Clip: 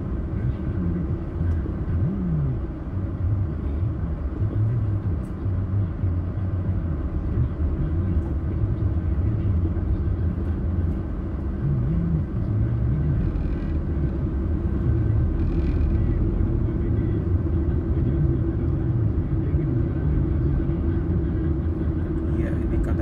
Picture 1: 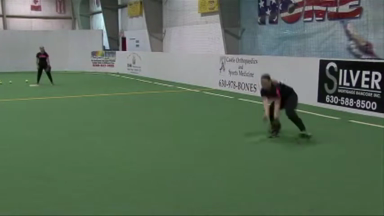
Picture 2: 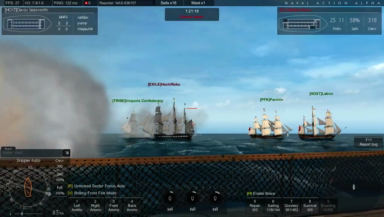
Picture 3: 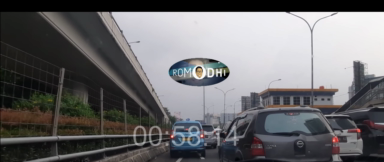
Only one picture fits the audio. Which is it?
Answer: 3